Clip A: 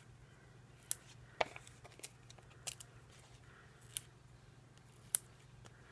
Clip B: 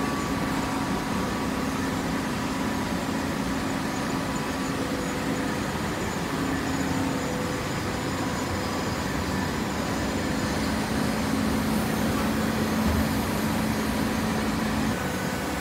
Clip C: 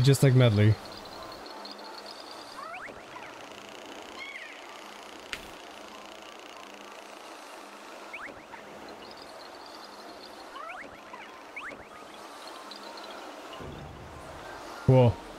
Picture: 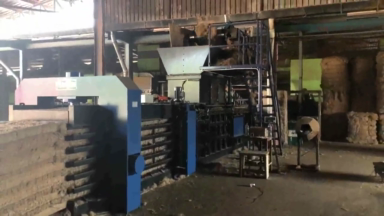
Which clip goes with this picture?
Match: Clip B